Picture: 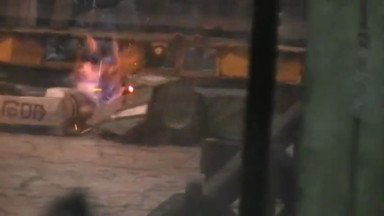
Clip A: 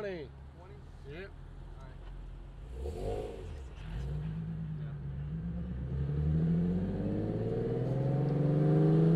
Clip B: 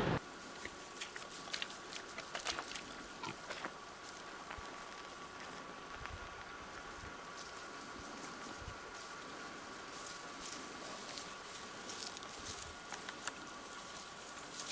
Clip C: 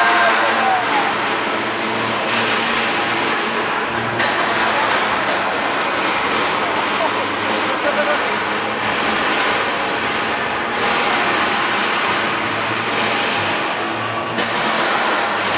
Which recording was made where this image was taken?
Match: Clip C